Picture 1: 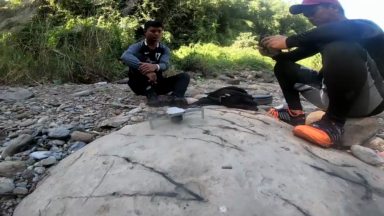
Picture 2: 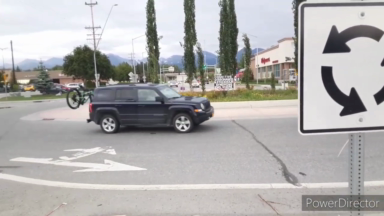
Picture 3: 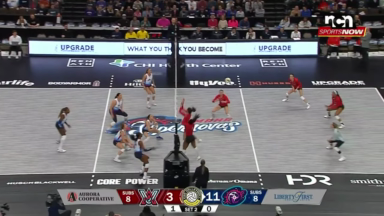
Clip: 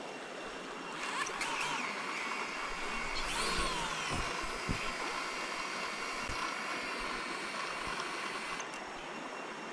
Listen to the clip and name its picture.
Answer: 1